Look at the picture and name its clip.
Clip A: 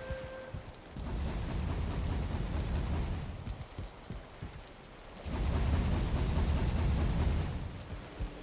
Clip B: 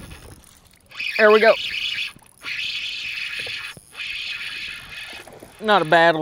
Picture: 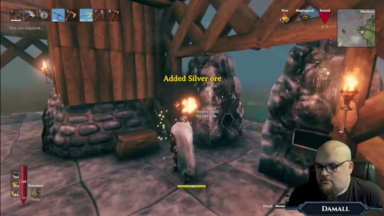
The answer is A